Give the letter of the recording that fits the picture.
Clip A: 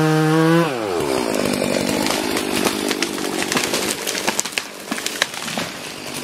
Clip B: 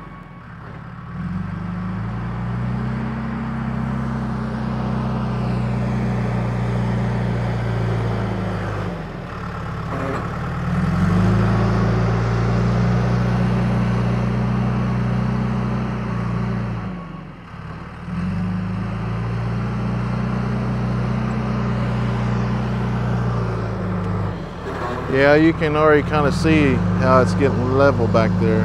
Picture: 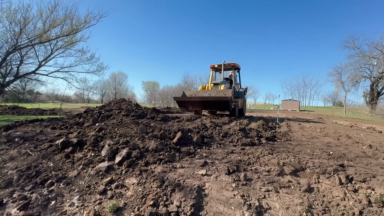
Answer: B